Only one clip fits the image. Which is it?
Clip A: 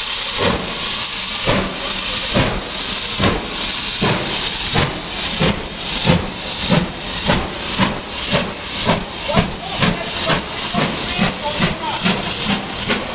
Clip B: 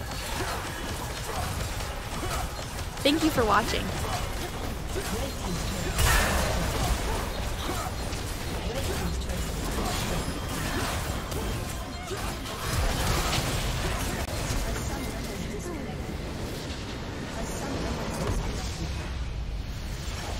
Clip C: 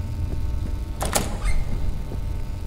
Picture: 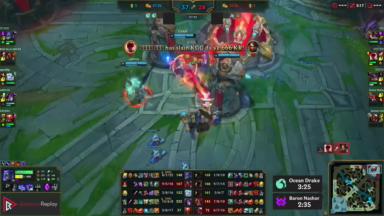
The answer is B